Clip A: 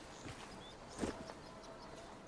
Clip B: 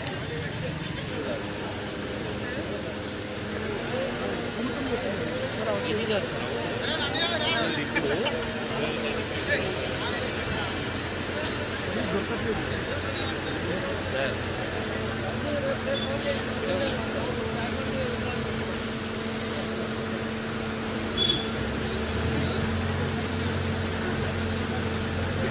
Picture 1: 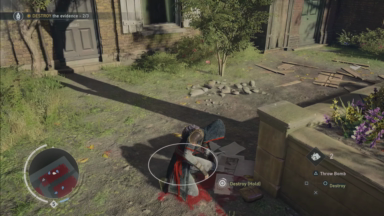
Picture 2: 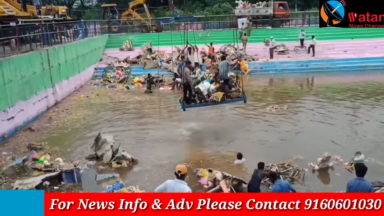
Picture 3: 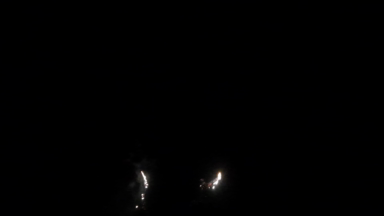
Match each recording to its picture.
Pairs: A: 1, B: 2